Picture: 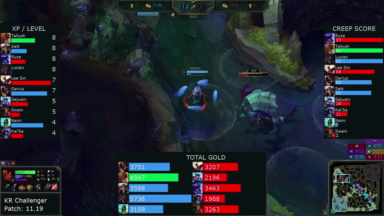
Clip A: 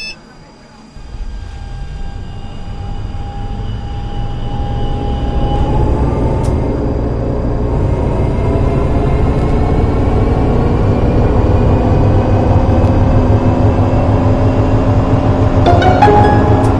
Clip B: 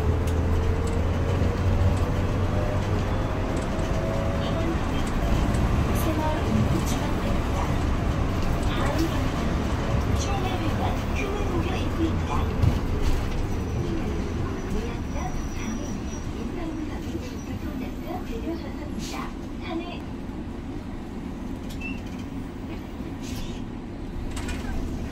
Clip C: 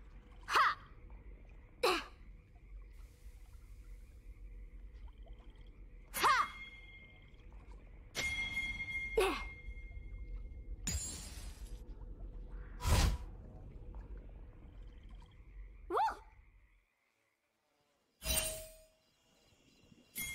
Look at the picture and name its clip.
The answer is C